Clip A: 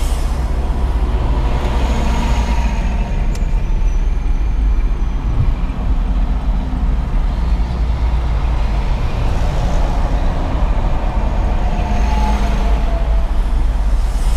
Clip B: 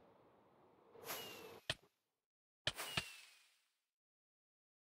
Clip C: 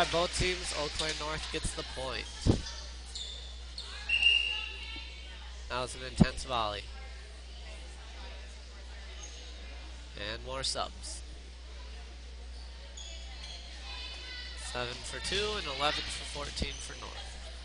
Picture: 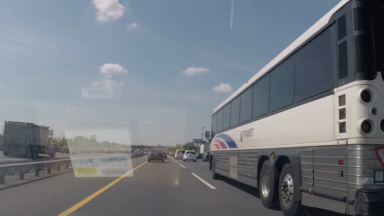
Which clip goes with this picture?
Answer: A